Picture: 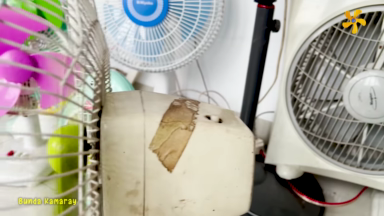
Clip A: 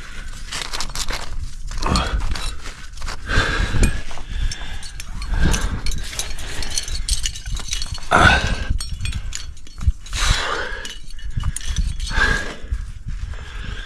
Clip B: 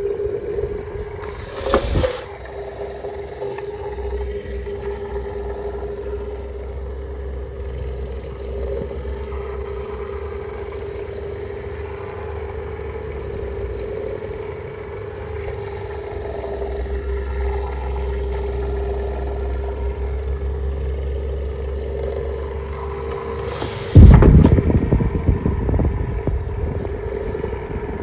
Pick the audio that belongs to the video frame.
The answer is B